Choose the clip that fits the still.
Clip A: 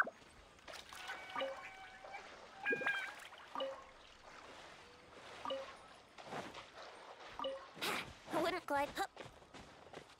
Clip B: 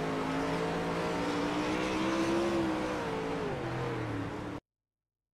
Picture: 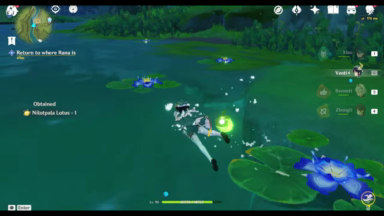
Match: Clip A